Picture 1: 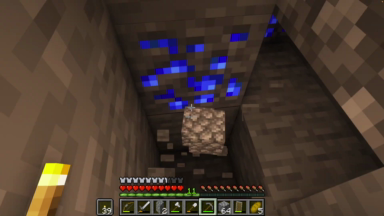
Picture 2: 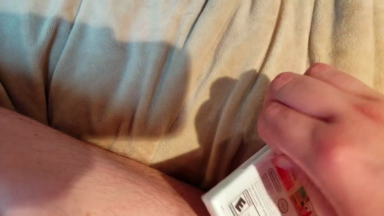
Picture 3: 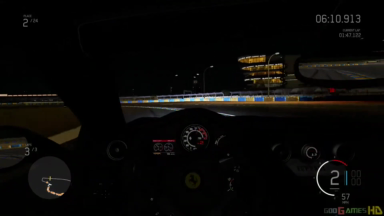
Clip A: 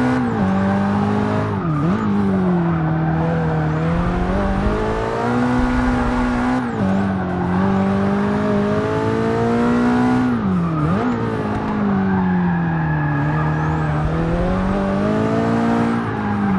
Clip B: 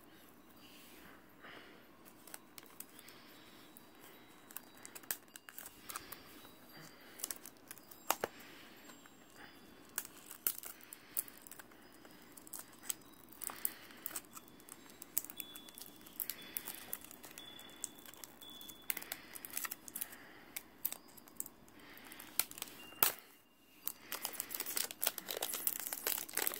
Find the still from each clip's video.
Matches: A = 3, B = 2